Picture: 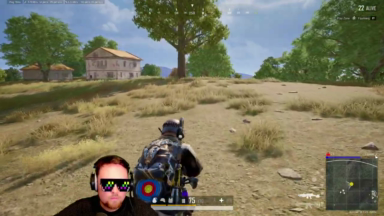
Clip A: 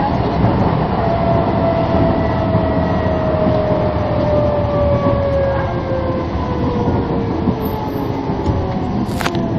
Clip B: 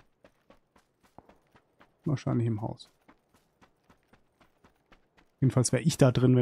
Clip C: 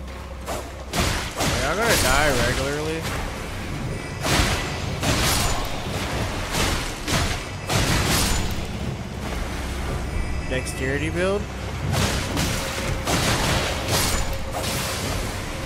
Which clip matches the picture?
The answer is B